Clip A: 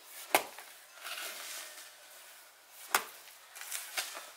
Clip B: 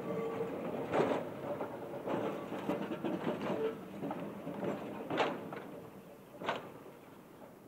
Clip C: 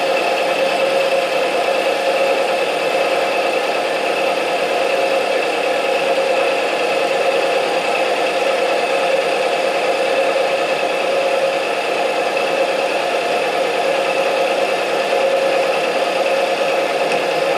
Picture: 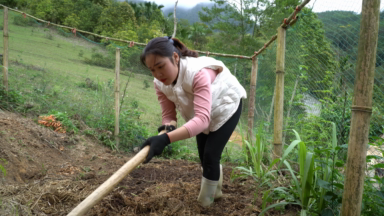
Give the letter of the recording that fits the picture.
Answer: A